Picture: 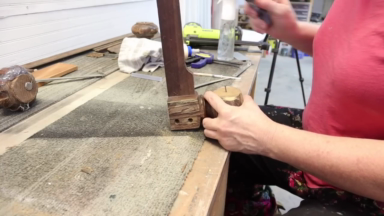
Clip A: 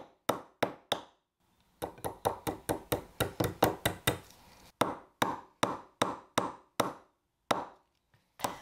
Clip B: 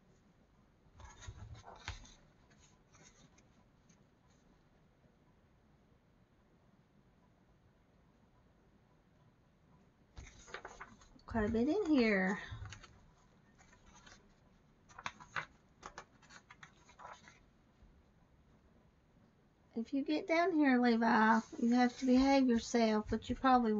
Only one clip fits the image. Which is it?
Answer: A